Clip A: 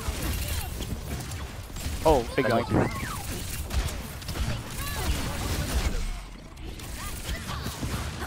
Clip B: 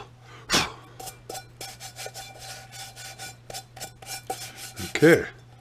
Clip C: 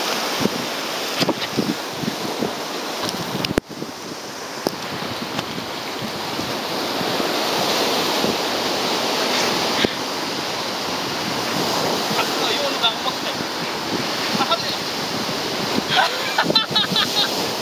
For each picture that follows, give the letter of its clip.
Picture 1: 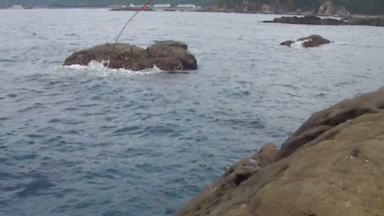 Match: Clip C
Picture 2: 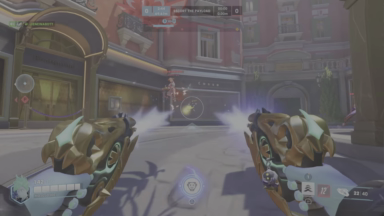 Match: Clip A